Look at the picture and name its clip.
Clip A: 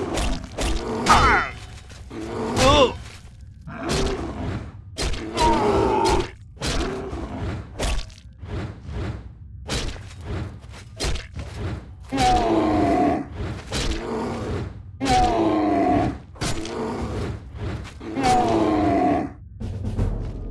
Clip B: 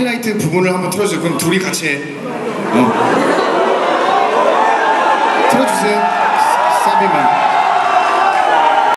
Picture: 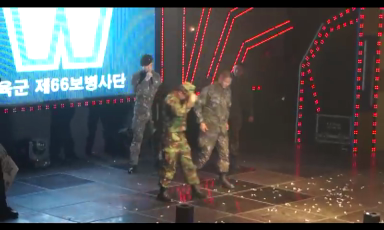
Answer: B